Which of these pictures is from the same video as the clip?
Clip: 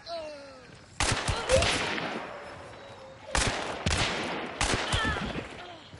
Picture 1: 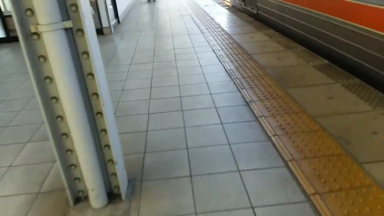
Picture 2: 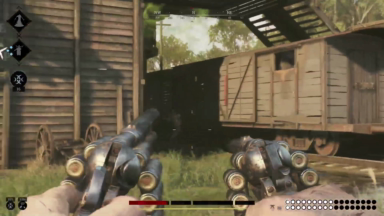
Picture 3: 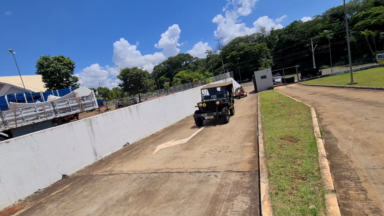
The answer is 2